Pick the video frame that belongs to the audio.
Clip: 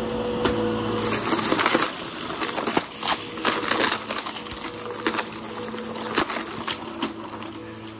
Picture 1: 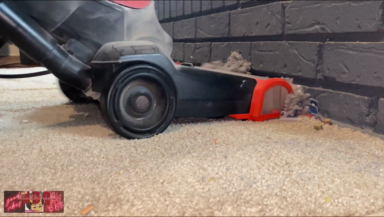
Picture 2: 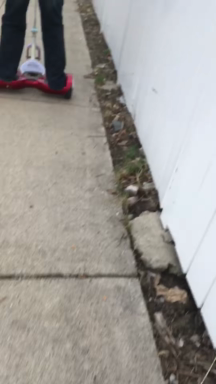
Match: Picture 1